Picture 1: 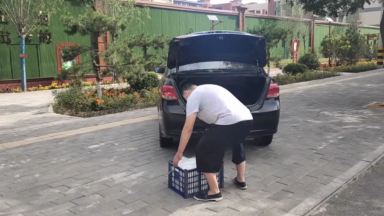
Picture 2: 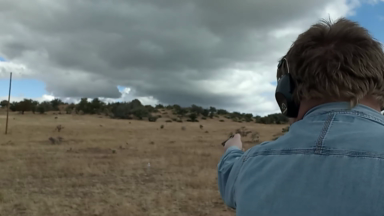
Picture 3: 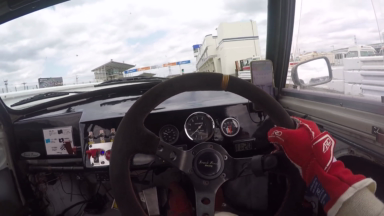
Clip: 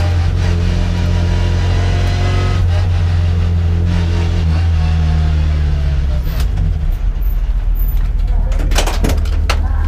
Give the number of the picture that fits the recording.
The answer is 3